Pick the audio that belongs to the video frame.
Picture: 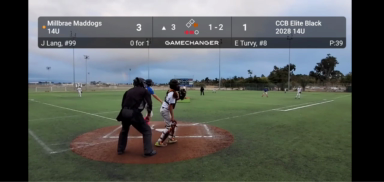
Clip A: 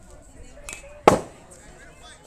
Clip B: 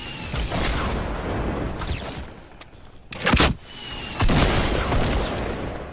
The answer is A